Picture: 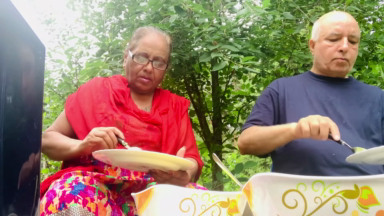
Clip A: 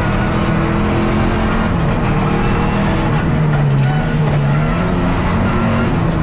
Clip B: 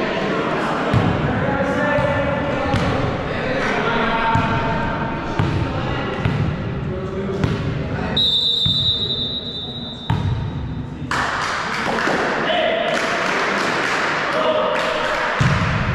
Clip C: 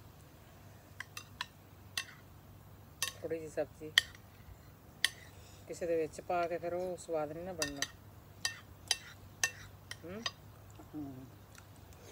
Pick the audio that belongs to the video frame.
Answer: C